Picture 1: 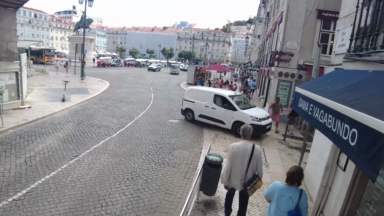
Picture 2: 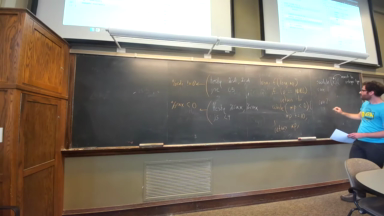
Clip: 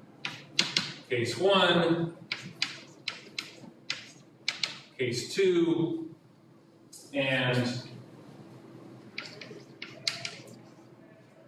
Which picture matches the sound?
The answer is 2